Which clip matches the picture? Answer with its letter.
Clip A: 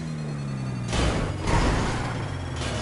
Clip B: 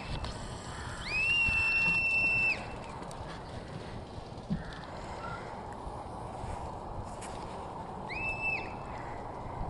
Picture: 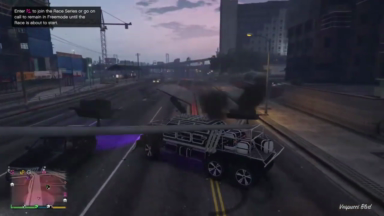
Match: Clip A